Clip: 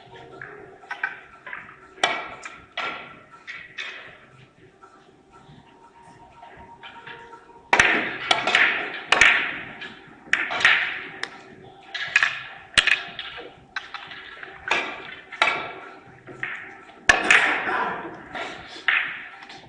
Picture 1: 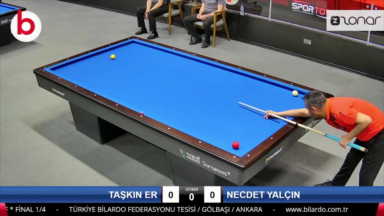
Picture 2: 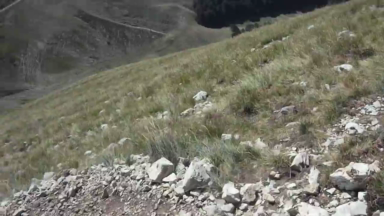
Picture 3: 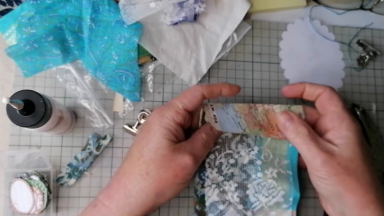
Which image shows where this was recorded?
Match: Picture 1